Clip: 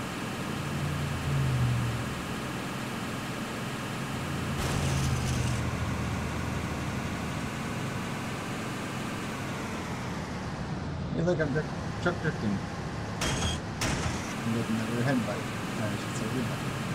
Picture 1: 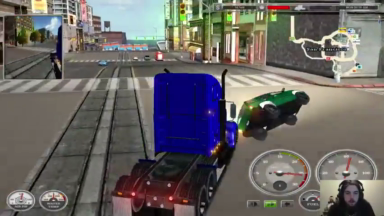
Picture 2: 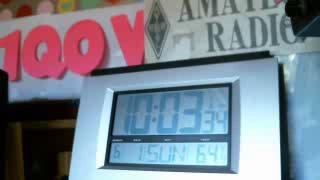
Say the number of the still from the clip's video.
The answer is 1